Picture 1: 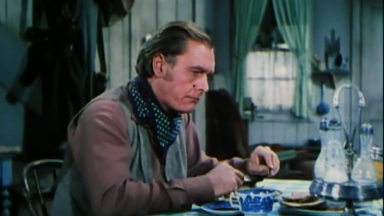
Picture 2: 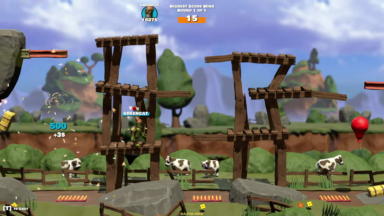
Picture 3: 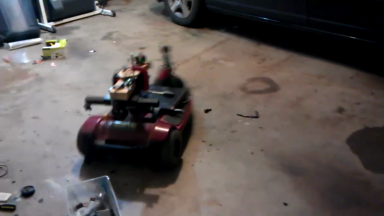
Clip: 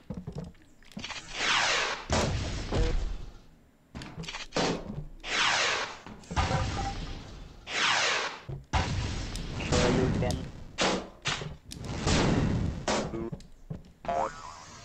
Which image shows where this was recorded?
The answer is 2